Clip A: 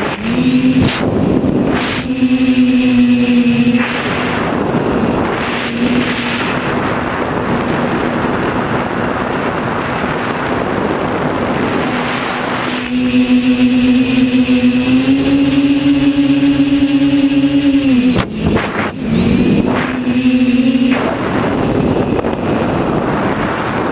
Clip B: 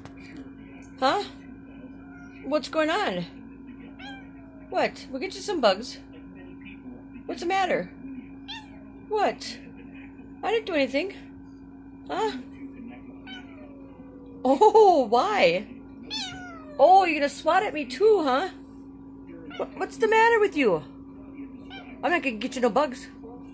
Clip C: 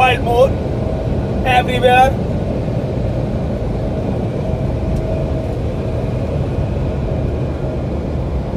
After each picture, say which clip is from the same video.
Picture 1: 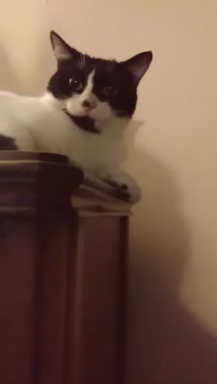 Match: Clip B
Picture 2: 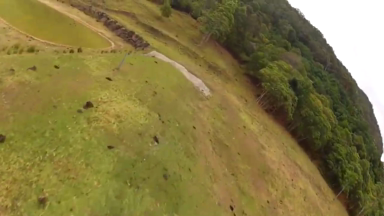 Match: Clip A